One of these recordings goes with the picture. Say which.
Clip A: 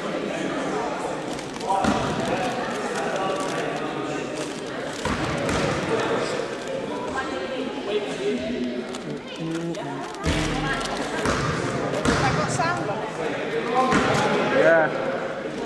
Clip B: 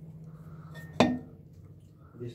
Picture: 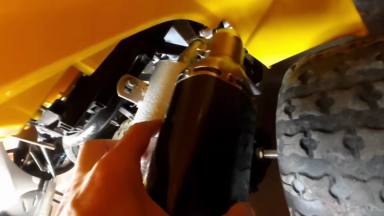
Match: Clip B